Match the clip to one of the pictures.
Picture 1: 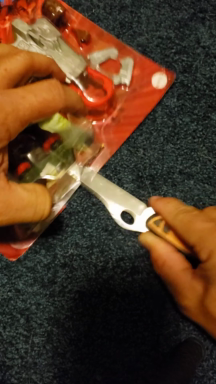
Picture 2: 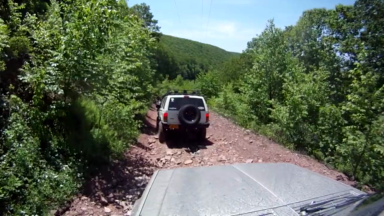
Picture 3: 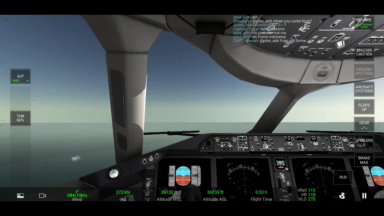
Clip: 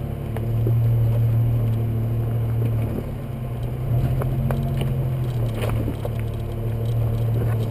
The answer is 2